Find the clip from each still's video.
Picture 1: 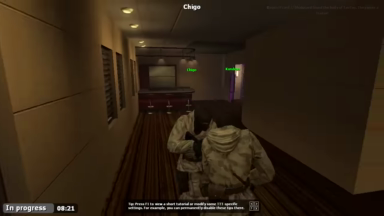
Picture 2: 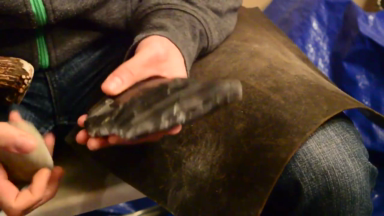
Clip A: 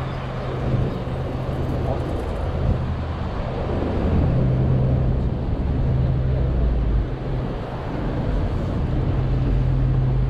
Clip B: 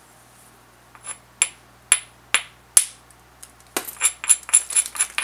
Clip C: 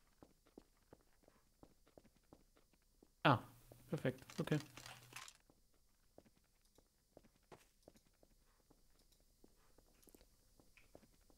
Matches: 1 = C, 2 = B